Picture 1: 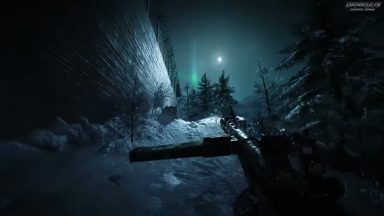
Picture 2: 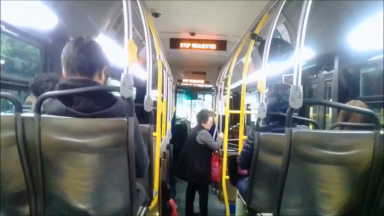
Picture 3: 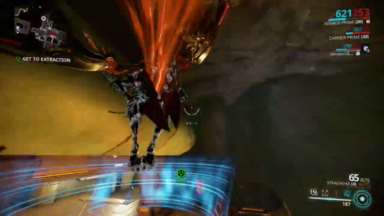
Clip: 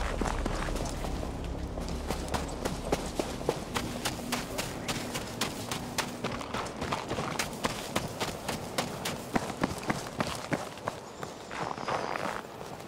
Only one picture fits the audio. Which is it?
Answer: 1